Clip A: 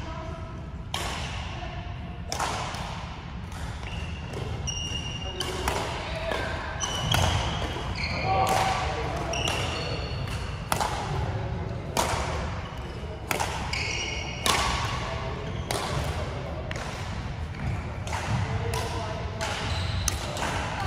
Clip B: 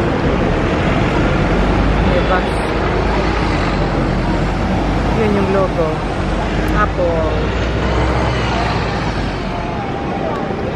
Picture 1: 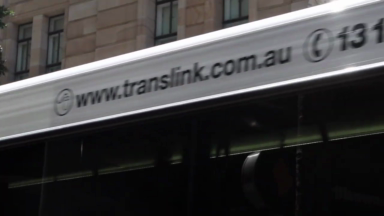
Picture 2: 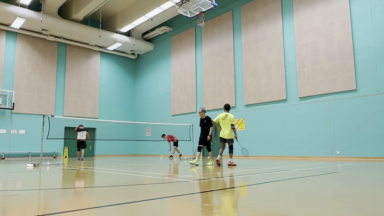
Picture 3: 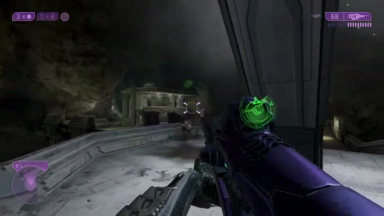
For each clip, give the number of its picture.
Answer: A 2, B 1